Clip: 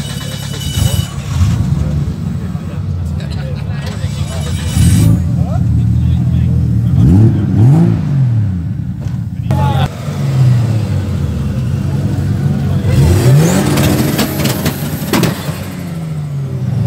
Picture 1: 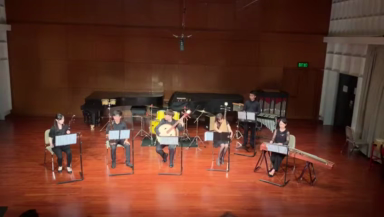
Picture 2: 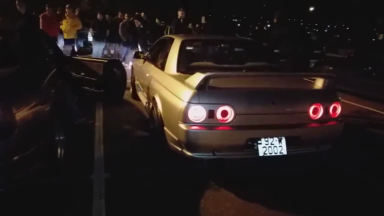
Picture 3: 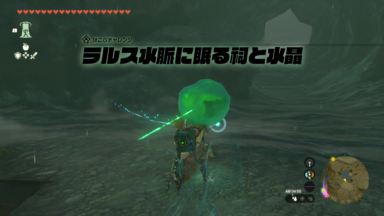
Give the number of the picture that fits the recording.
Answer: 2